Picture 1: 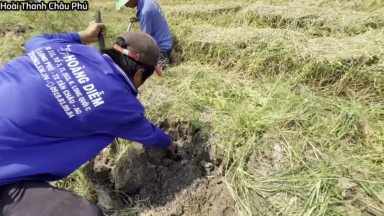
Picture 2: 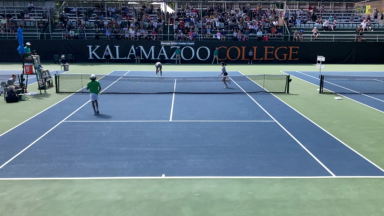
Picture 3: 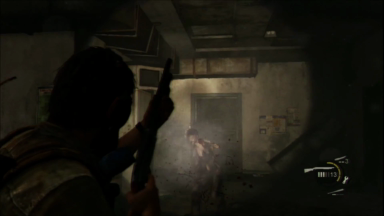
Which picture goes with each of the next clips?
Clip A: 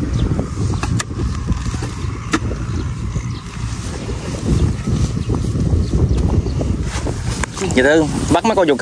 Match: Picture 1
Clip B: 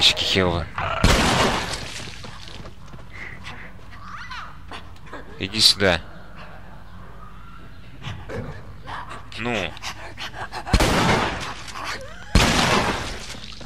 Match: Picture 3